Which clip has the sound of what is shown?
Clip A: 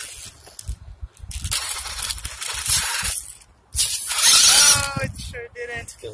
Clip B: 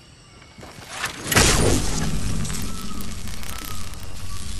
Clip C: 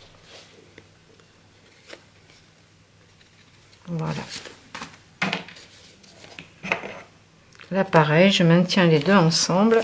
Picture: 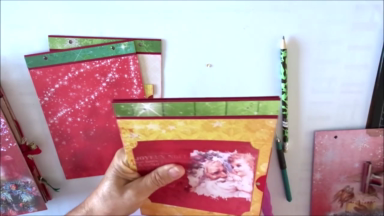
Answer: C